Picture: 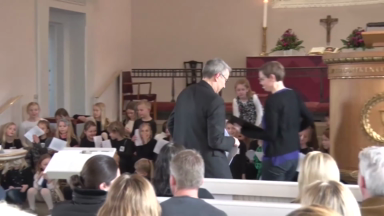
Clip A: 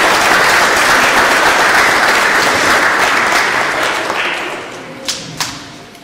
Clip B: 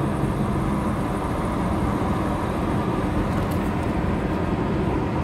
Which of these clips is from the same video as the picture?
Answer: A